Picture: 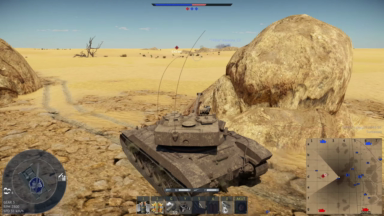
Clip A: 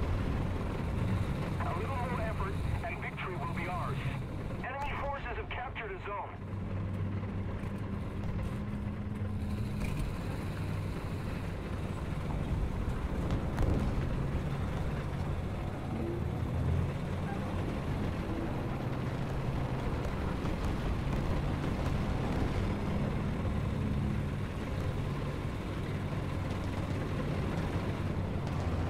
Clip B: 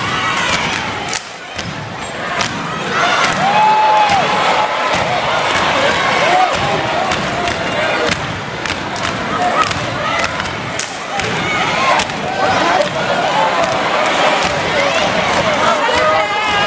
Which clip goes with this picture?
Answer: A